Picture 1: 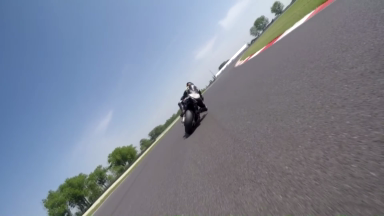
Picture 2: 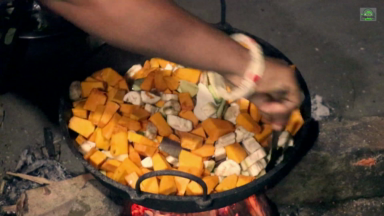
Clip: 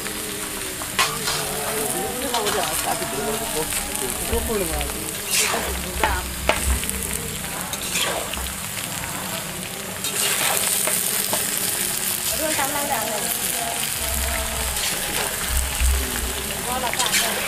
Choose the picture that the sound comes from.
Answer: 2